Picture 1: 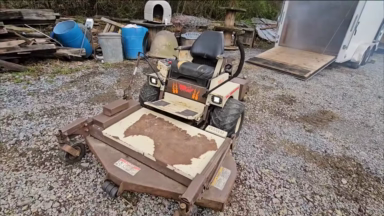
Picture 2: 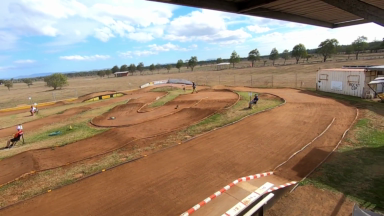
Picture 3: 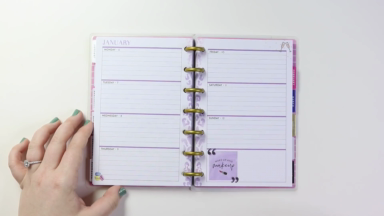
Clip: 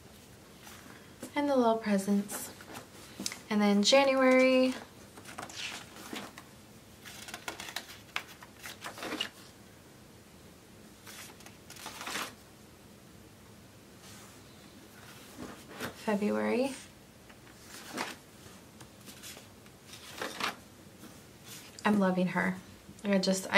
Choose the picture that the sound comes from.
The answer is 3